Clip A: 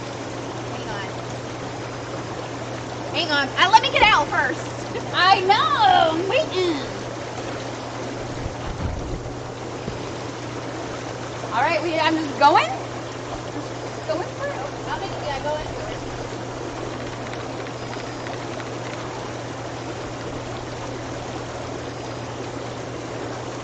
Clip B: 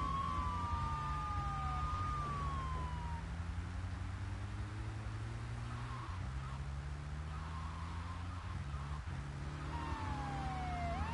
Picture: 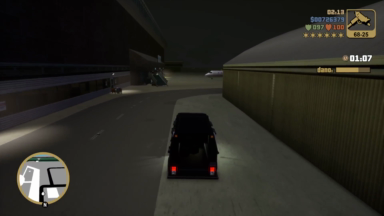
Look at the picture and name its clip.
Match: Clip B